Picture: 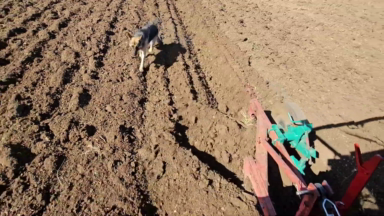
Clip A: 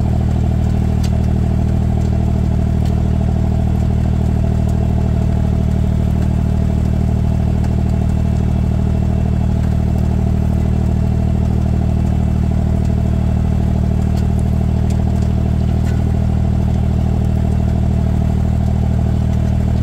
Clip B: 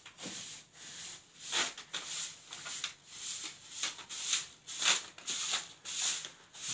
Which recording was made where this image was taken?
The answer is A